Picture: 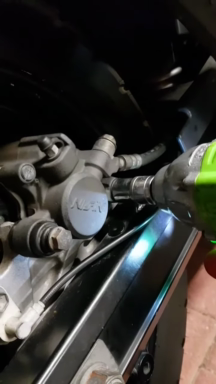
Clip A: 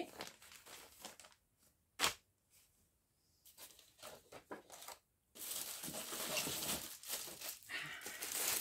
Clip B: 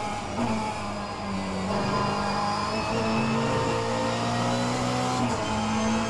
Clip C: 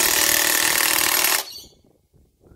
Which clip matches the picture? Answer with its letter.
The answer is C